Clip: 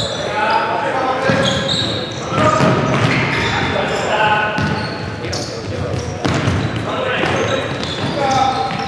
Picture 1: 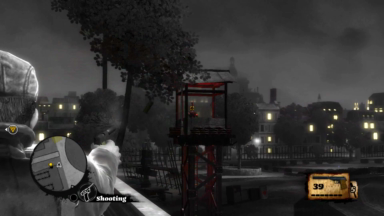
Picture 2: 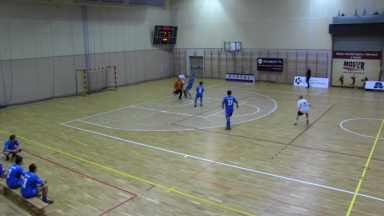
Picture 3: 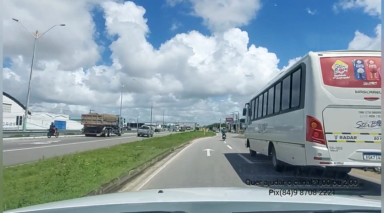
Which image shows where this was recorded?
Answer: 2